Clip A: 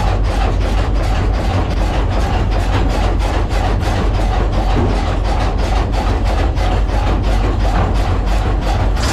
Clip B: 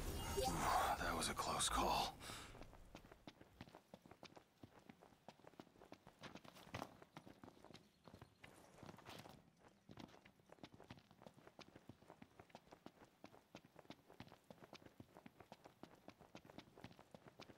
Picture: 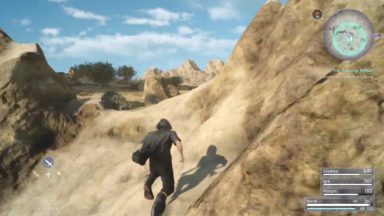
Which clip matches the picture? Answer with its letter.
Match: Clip B